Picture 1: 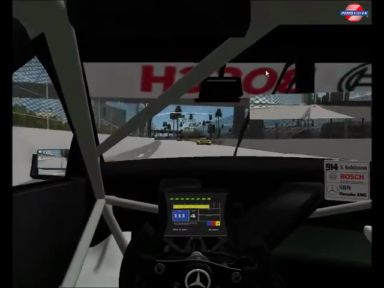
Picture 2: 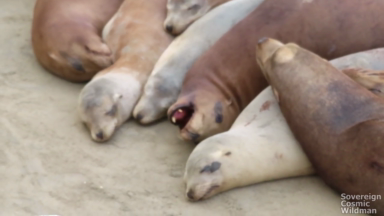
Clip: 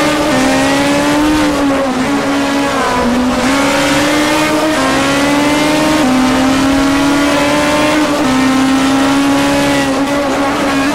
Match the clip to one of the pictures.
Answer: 1